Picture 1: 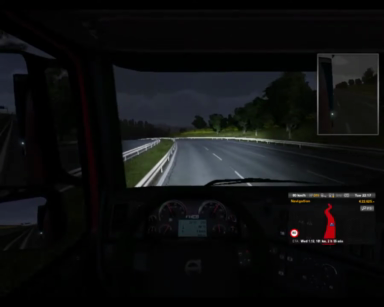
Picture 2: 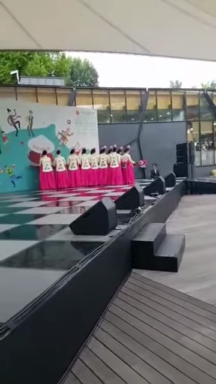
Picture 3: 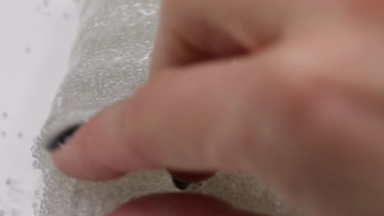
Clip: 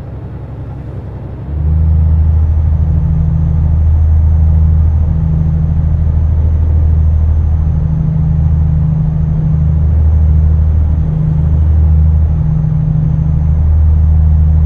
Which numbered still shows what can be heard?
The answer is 1